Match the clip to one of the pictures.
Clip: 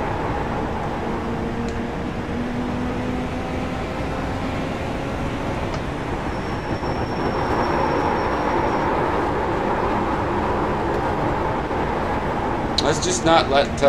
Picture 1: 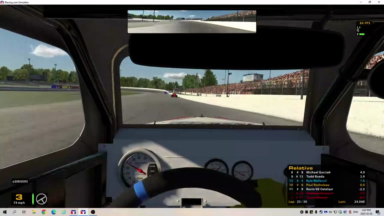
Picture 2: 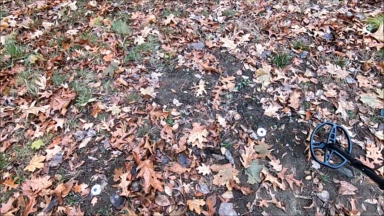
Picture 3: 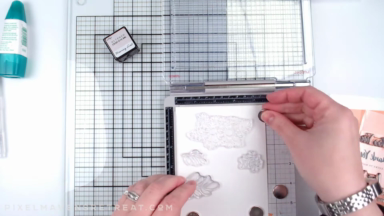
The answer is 1